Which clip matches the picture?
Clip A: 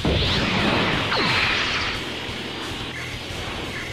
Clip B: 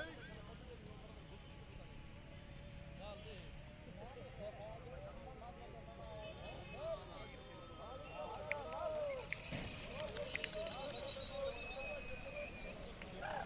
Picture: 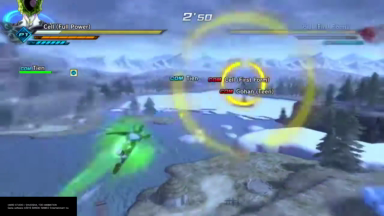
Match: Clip A